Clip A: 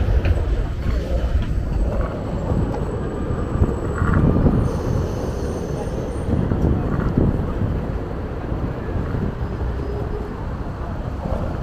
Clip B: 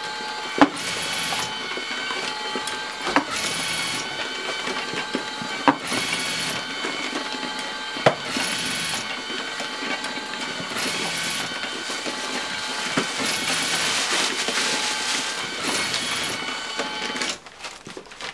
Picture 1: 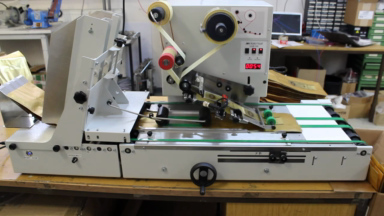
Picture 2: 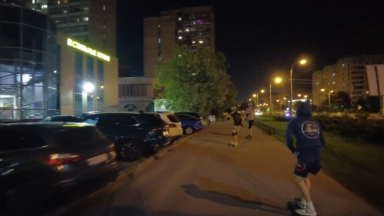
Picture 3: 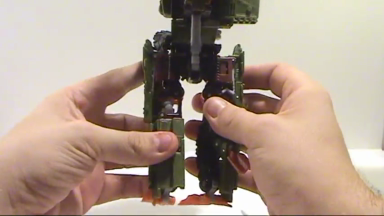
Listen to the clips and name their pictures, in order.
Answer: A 2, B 1